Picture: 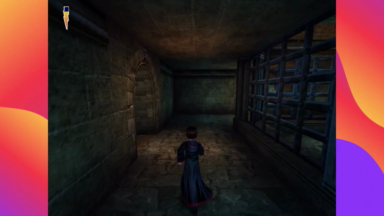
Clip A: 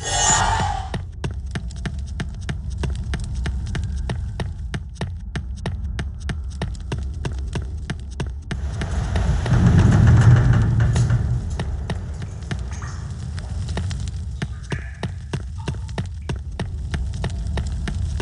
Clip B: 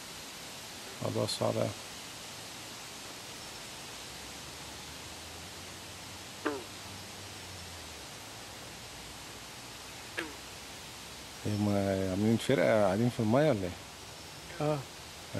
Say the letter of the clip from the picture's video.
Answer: A